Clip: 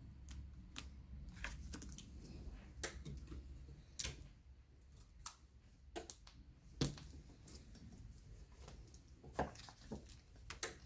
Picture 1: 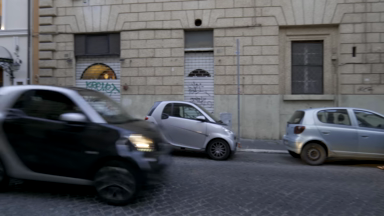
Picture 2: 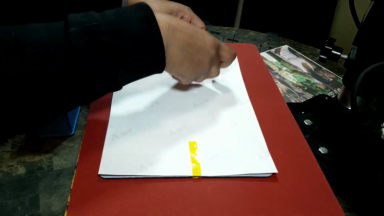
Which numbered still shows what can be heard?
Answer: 2